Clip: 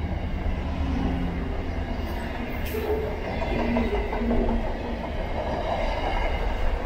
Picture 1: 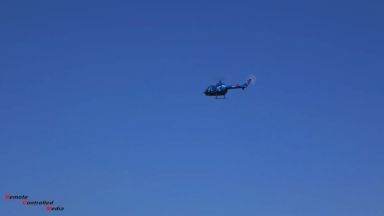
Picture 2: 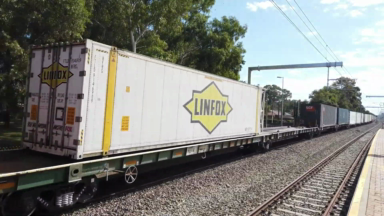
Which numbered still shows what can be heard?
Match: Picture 2